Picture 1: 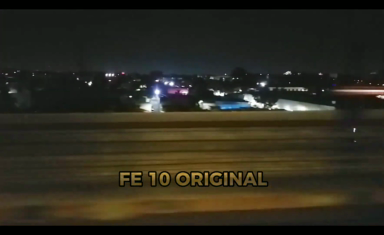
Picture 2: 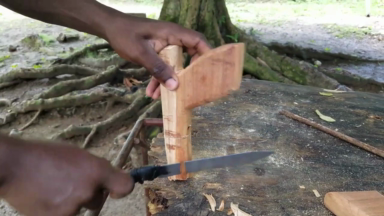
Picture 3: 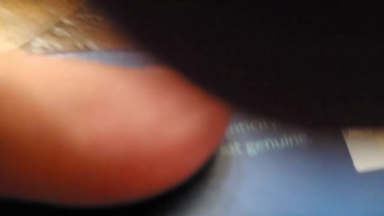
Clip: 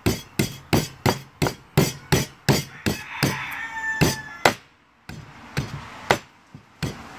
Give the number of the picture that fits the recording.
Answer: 2